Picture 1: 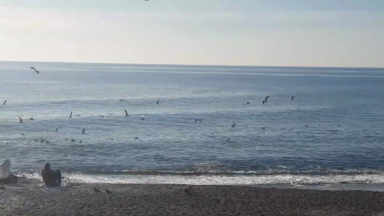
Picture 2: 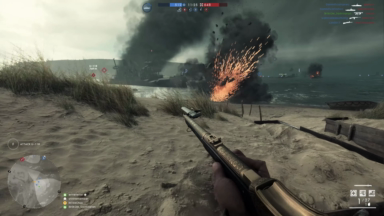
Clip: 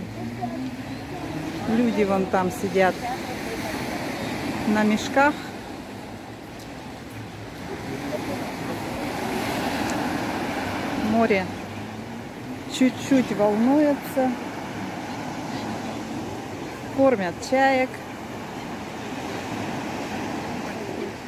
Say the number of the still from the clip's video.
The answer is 1